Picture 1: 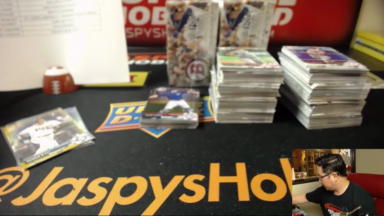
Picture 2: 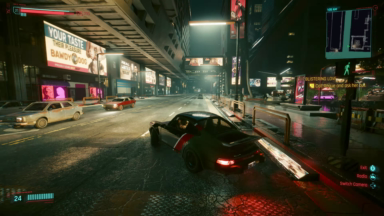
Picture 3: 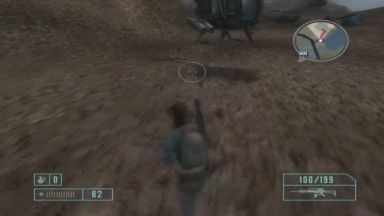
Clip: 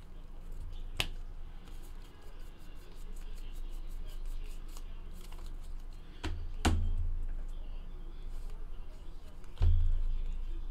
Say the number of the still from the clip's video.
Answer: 1